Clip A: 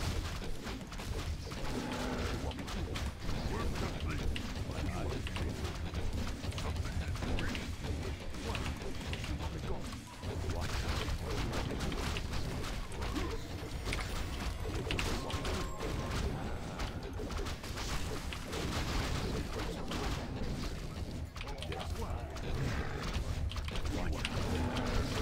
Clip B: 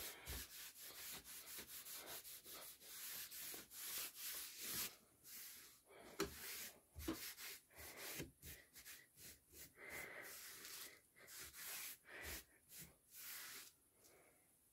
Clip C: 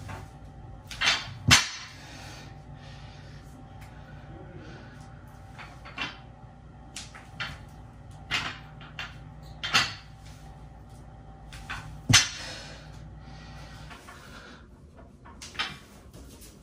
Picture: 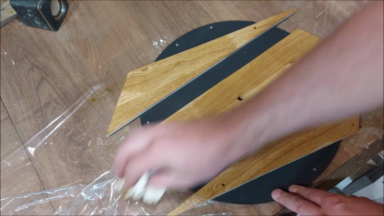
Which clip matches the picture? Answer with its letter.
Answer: B